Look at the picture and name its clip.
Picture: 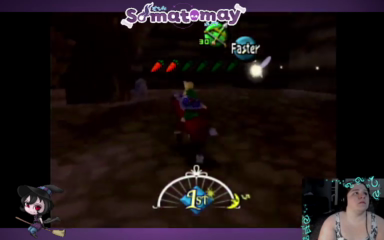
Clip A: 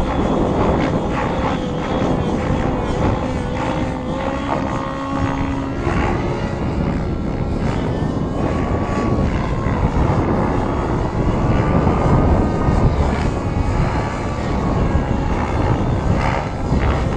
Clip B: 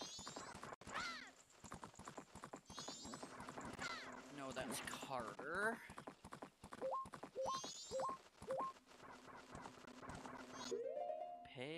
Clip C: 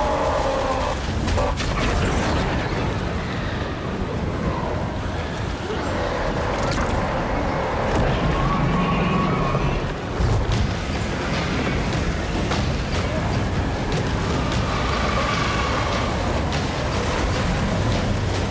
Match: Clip B